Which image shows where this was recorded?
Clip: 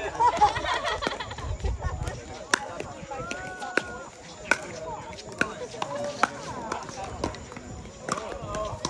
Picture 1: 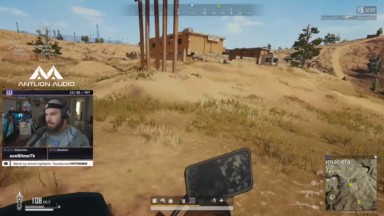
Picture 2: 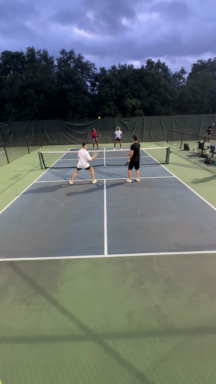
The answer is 2